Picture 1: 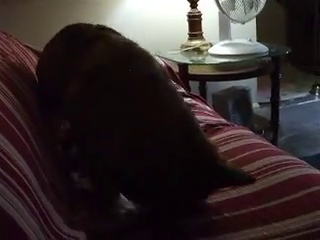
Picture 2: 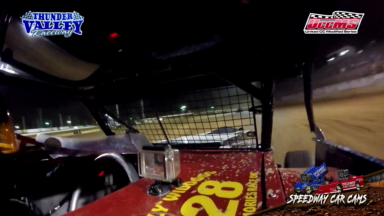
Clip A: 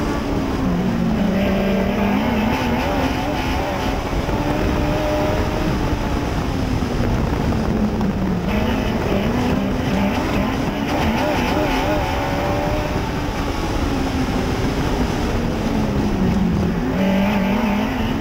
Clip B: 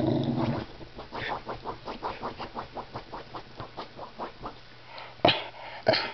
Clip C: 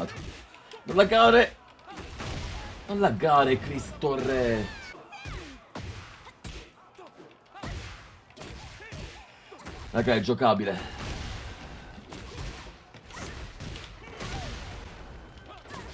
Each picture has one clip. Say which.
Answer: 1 B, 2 A